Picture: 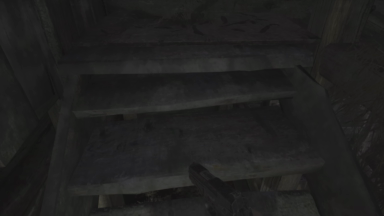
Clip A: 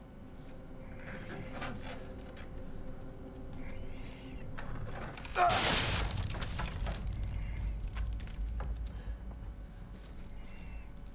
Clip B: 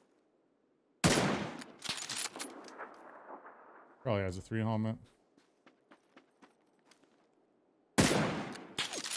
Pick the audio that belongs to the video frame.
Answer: A